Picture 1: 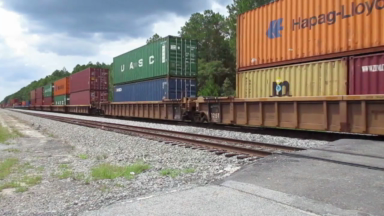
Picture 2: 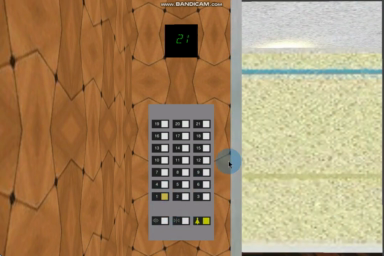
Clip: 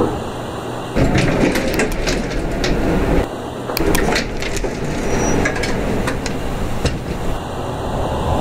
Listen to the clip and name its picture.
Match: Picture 2